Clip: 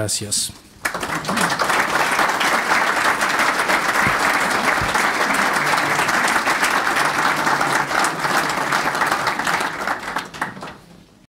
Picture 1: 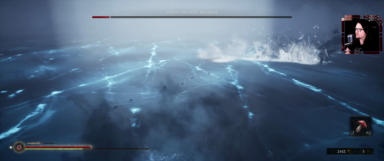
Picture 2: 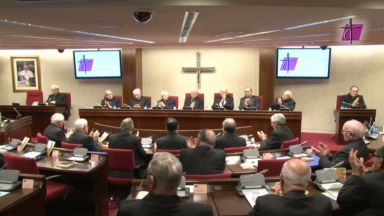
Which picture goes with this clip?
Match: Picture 2